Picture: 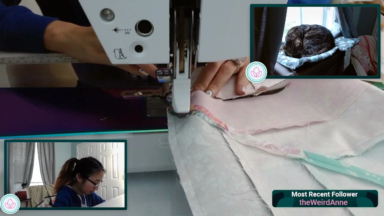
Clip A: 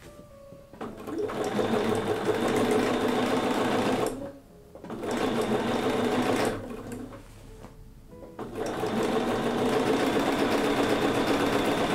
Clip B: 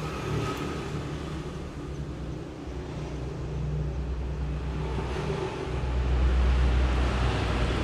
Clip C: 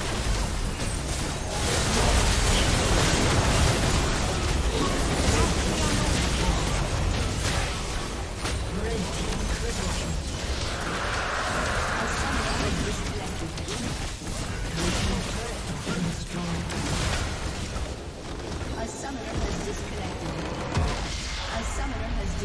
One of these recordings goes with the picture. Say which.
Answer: A